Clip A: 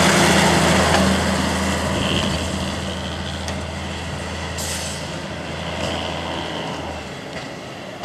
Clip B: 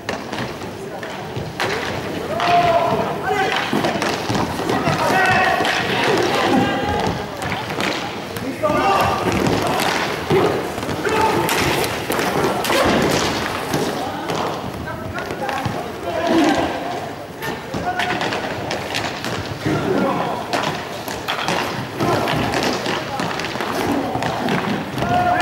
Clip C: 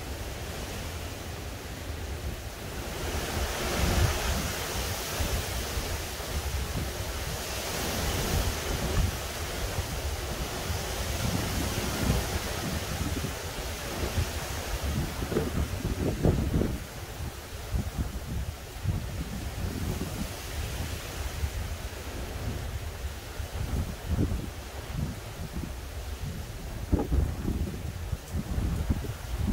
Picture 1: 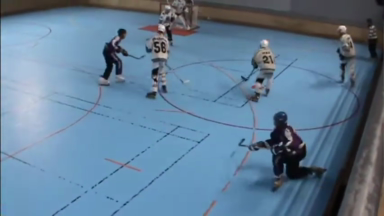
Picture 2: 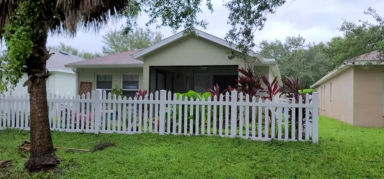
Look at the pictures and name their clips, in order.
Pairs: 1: B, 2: C